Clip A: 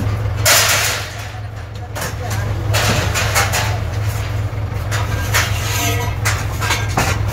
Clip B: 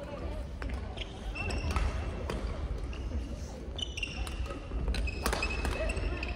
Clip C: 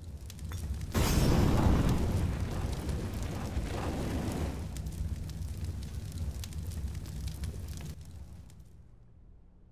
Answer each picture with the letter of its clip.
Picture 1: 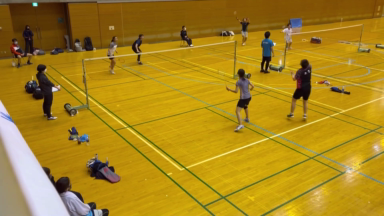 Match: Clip B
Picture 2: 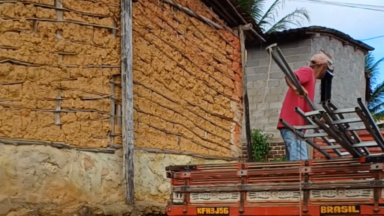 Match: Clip A